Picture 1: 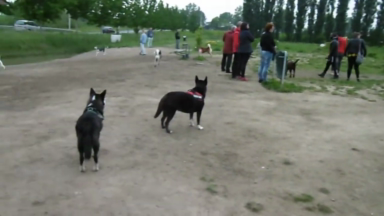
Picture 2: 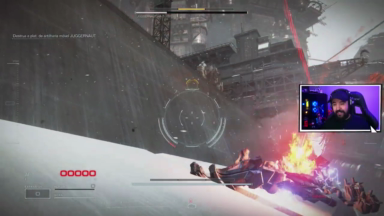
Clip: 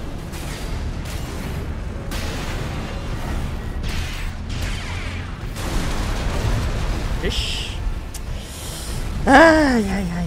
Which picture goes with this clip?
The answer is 2